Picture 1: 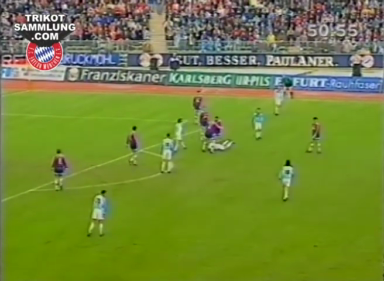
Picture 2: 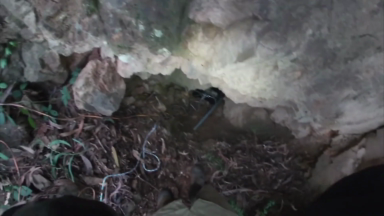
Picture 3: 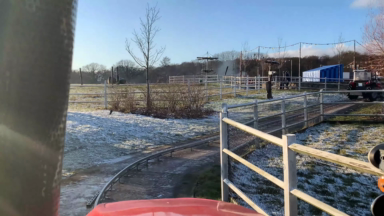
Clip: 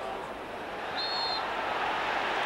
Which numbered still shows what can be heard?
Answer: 1